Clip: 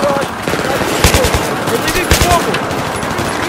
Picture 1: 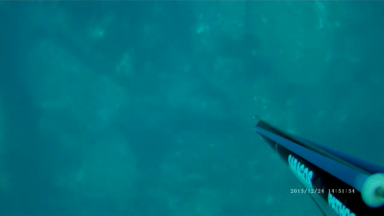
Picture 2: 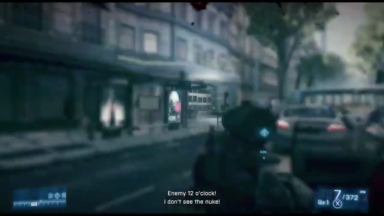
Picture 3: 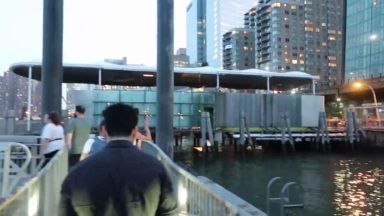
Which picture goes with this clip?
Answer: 2